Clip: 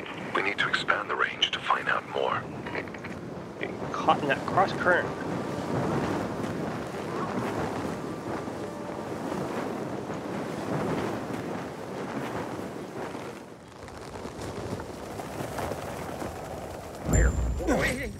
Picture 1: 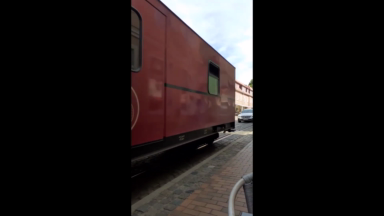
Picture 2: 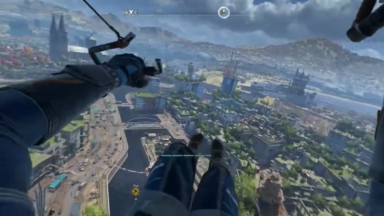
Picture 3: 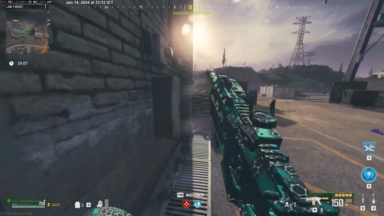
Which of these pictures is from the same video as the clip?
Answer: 2